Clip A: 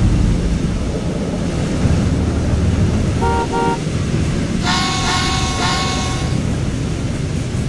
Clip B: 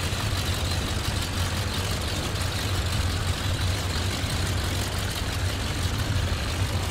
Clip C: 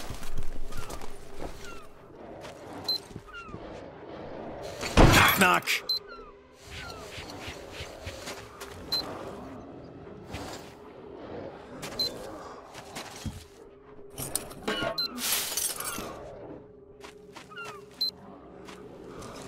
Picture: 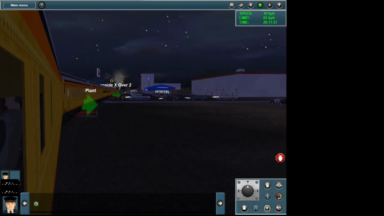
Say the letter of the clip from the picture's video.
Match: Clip A